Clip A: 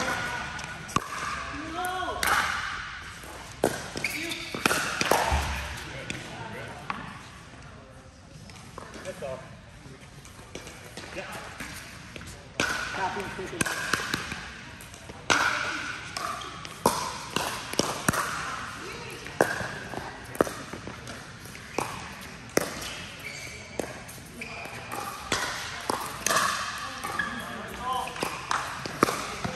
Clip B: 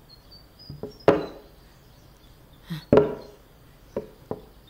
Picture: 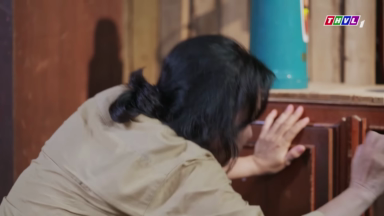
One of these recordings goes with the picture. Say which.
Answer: B